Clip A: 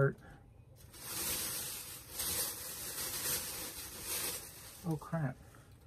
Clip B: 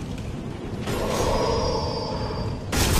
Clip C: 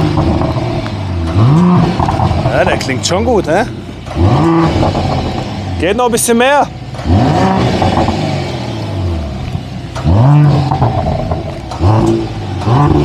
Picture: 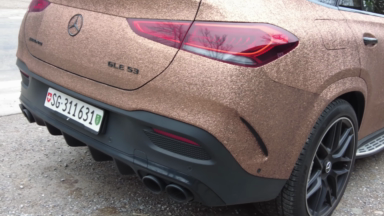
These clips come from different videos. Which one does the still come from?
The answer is C